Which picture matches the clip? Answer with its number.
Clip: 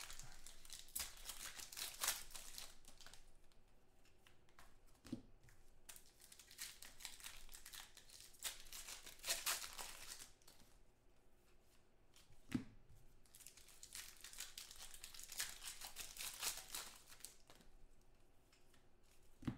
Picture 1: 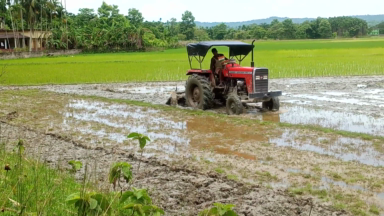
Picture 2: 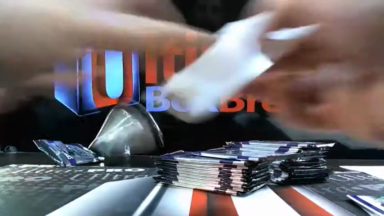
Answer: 2